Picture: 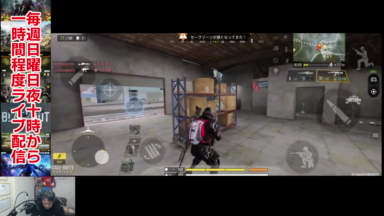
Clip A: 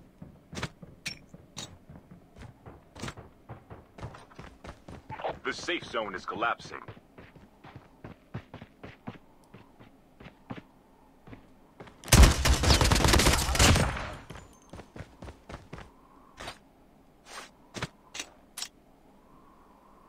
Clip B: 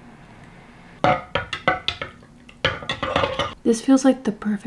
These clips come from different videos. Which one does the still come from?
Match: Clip A